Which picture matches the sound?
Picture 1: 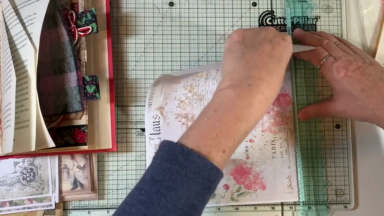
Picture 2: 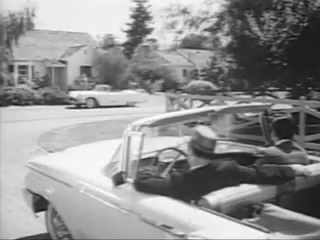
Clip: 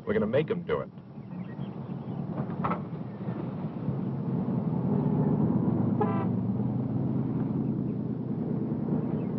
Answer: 2